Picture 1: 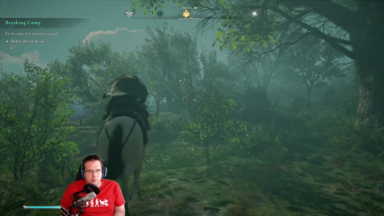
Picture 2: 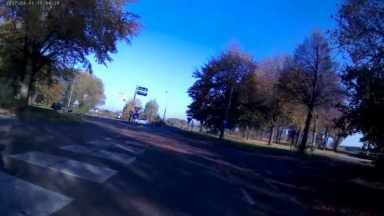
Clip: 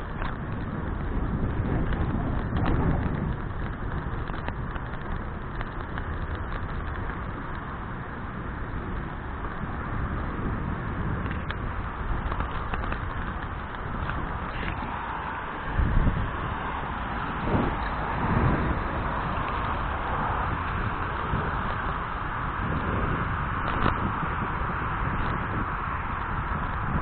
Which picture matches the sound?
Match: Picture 2